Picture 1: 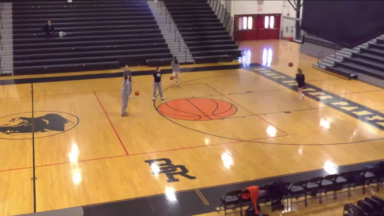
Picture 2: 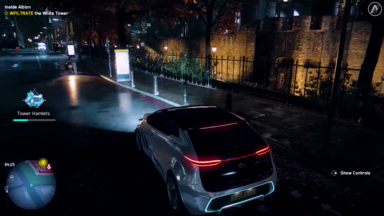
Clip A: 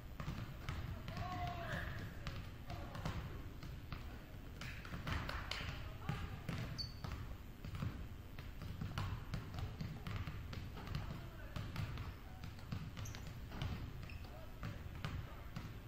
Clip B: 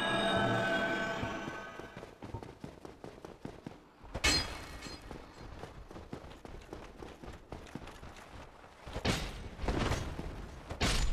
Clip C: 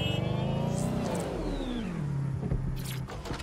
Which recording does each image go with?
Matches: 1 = A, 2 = C